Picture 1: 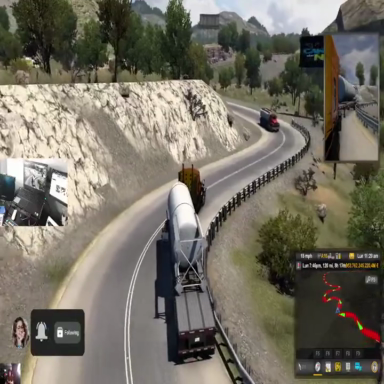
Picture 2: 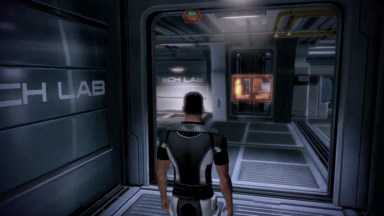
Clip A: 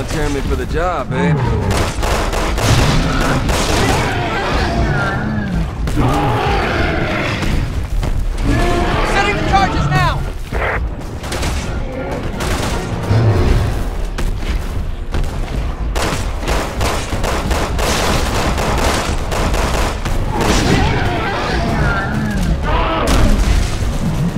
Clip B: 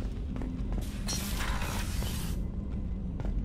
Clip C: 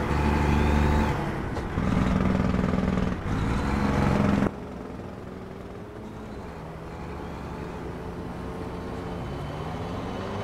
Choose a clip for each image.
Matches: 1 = C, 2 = B